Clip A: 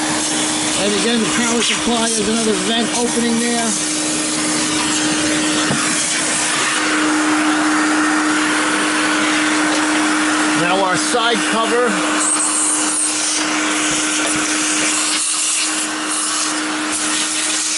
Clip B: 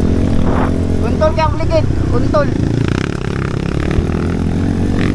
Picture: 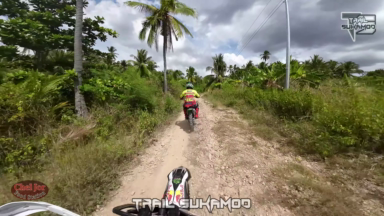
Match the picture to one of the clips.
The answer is B